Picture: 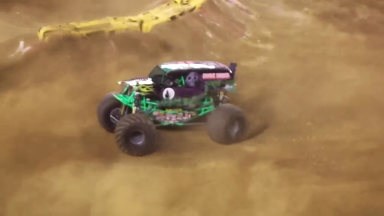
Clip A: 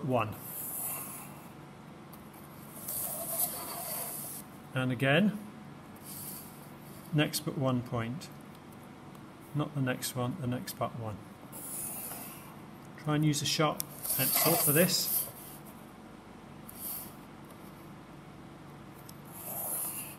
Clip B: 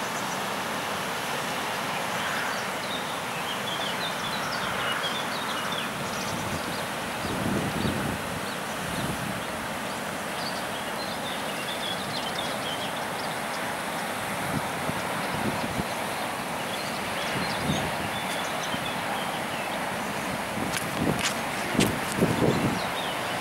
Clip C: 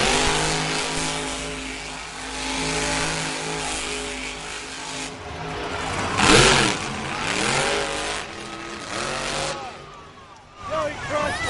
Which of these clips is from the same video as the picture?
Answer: C